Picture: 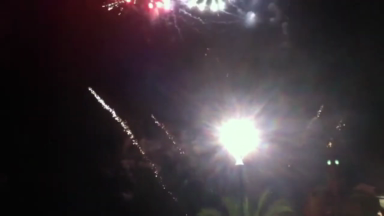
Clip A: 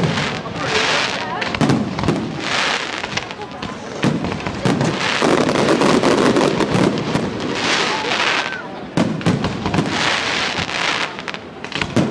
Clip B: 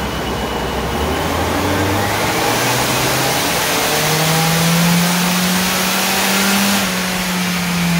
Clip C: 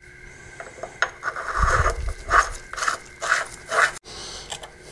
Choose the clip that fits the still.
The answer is A